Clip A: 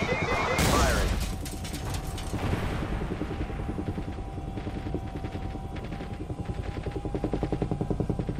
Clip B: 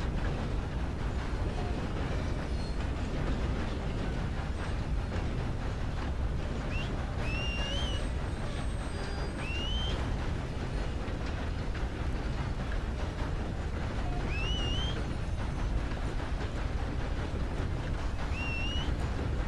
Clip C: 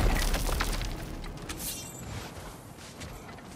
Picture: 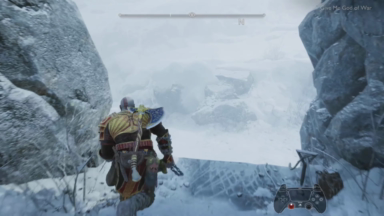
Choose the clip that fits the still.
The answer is C